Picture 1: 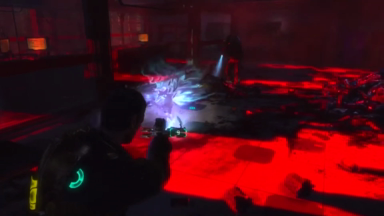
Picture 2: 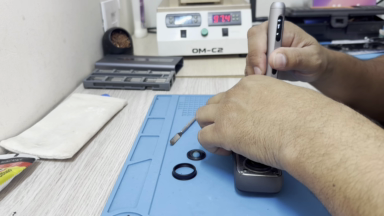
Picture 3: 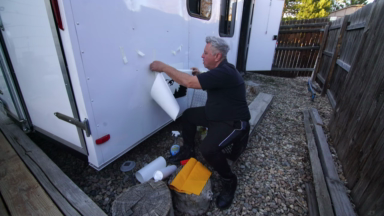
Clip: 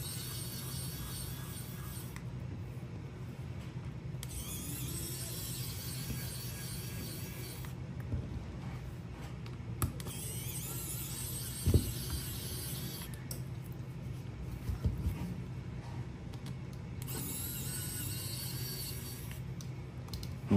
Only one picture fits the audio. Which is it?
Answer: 2